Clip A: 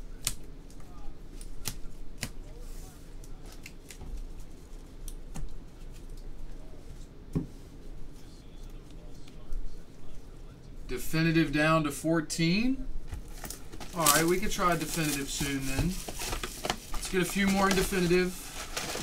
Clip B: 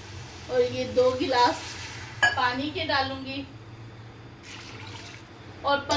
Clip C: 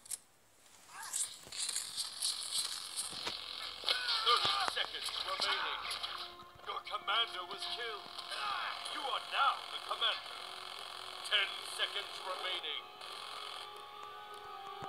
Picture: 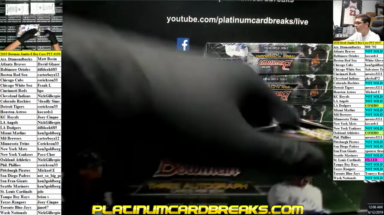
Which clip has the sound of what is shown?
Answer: A